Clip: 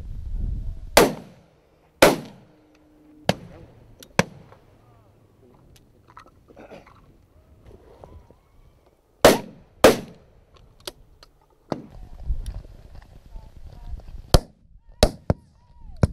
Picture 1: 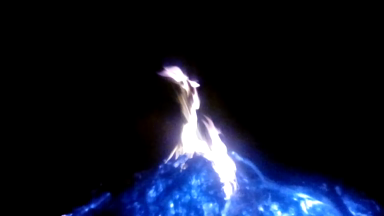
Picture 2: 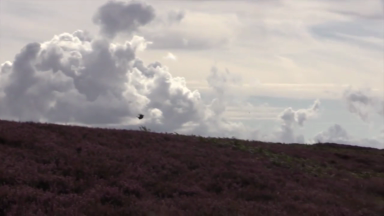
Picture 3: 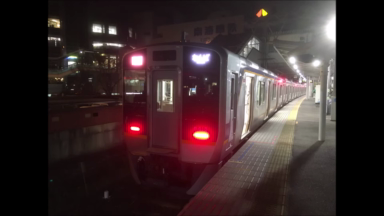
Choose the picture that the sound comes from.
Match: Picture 2